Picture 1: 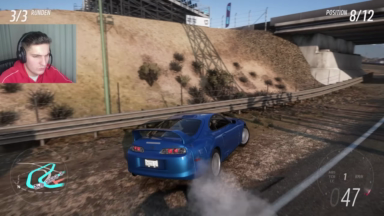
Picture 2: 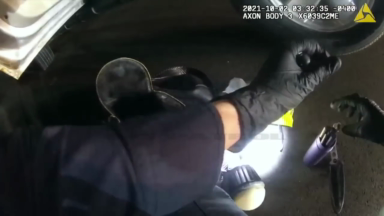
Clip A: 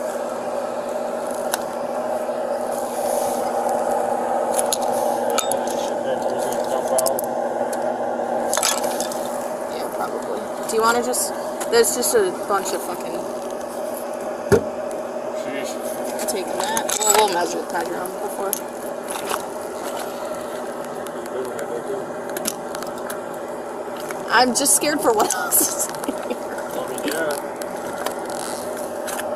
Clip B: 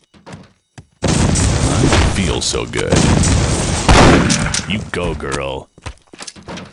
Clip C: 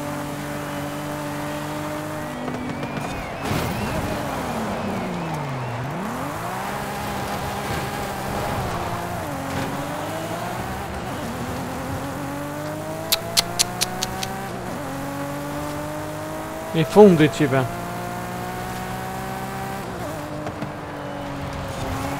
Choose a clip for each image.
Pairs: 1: C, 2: A